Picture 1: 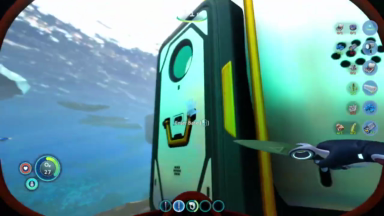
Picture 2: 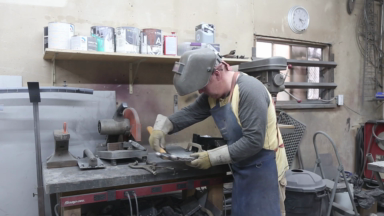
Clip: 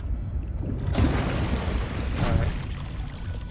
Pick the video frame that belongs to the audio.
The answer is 1